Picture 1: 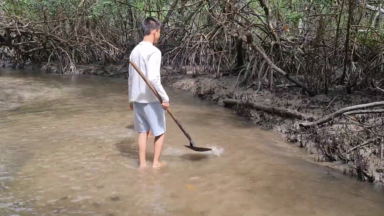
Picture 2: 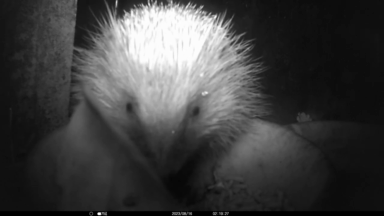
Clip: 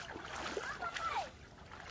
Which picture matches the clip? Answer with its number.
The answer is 1